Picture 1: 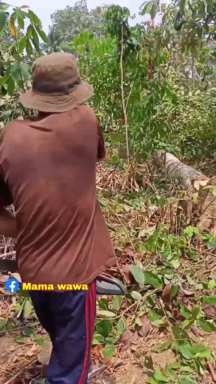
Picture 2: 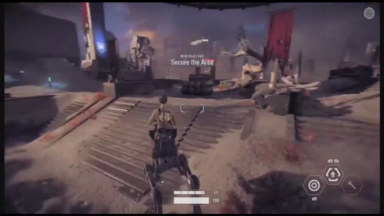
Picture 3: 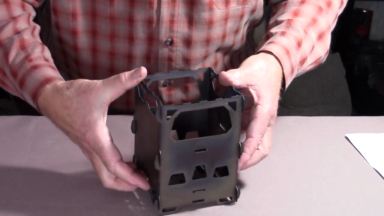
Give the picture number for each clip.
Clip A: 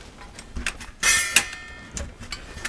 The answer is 3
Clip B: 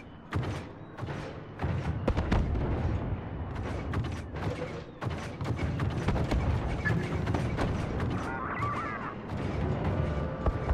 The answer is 2